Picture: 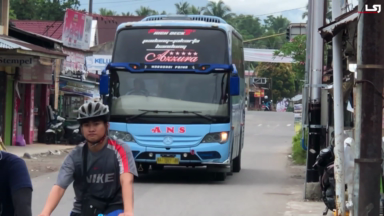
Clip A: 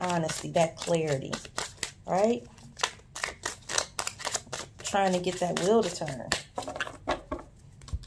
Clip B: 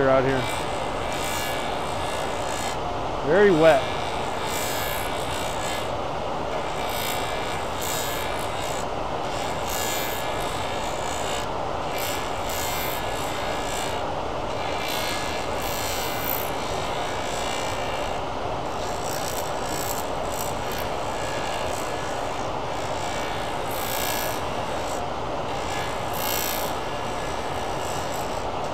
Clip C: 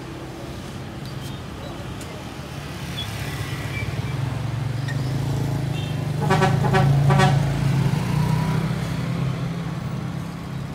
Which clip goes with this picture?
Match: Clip C